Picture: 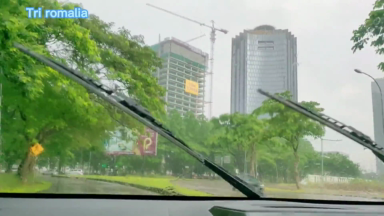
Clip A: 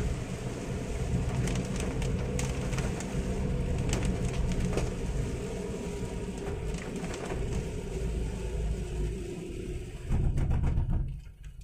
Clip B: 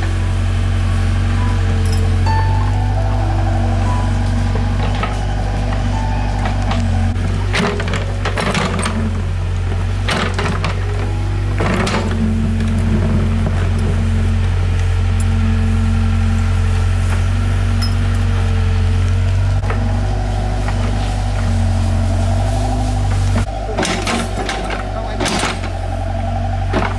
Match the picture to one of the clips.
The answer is A